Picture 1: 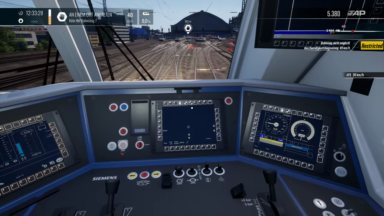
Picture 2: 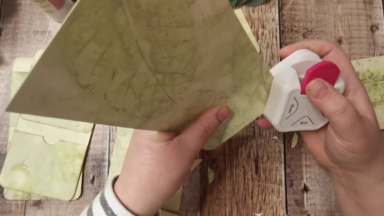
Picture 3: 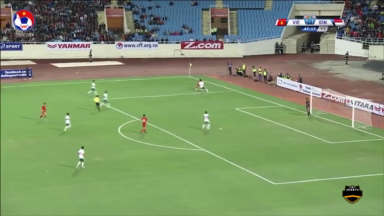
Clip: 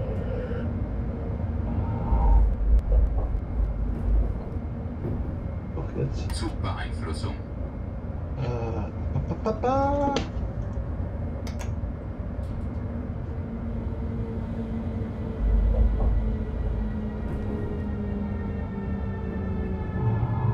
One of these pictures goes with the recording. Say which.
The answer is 1